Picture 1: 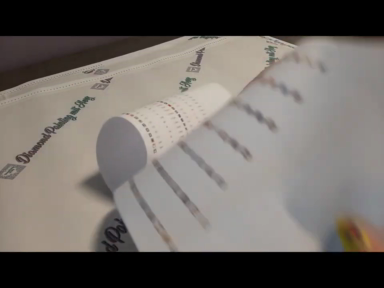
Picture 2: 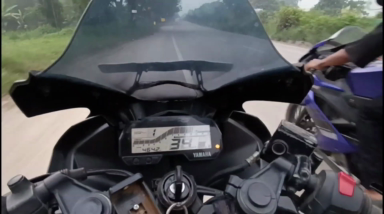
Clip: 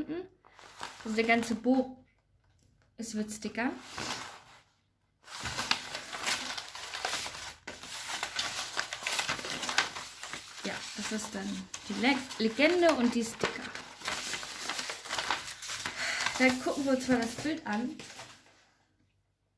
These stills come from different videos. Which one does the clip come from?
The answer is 1